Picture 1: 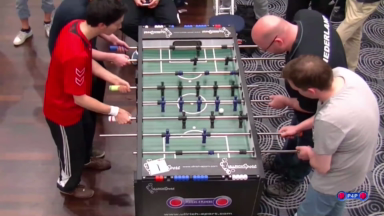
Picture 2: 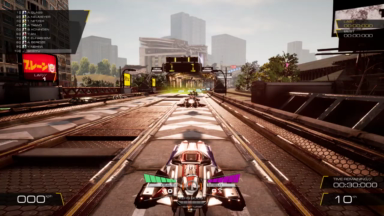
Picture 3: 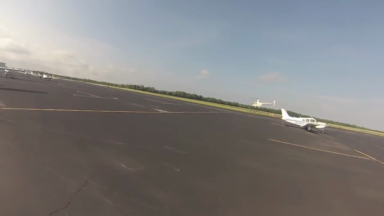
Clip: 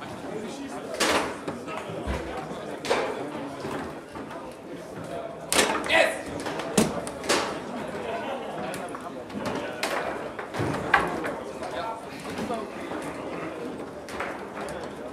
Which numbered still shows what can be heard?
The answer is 1